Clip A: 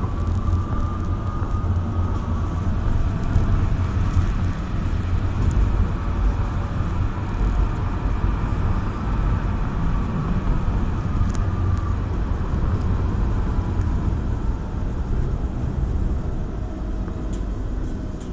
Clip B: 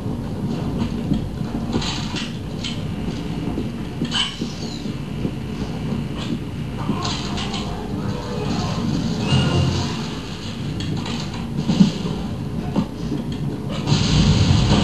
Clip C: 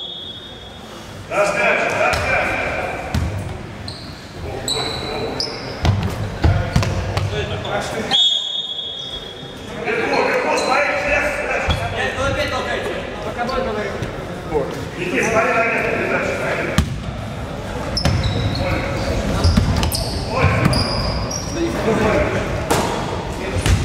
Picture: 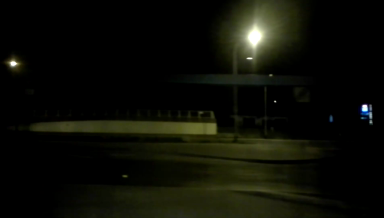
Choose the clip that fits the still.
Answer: A